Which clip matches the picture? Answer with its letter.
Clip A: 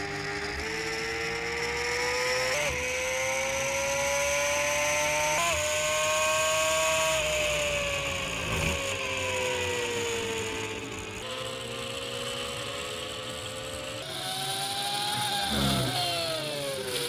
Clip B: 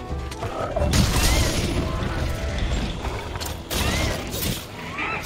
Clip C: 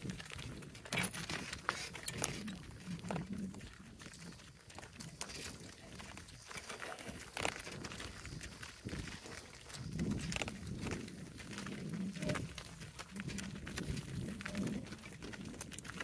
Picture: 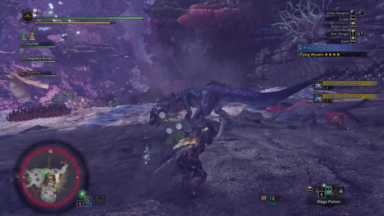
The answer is B